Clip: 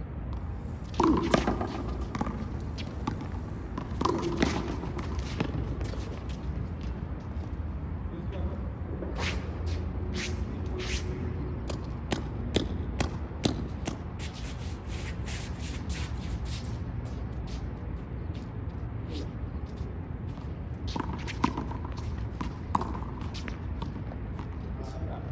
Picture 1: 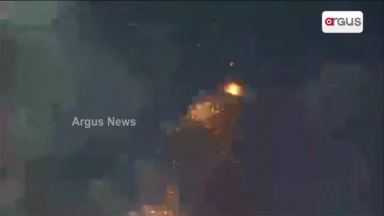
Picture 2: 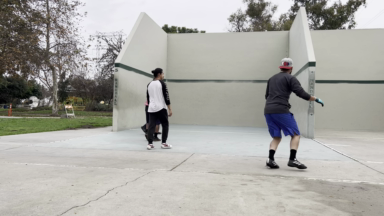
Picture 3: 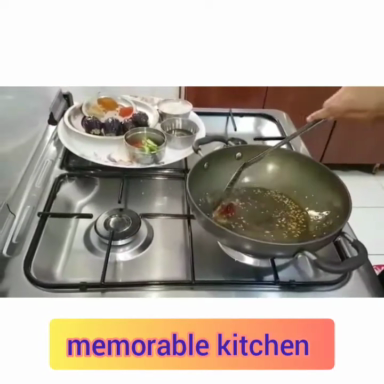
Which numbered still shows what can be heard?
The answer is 2